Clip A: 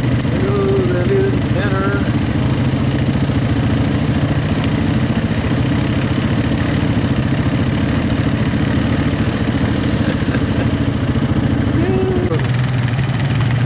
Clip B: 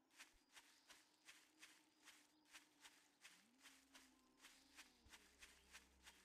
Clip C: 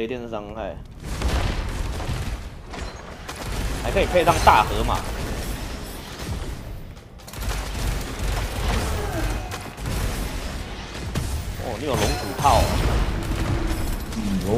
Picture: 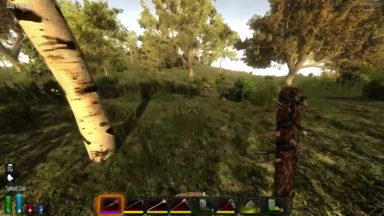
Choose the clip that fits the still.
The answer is B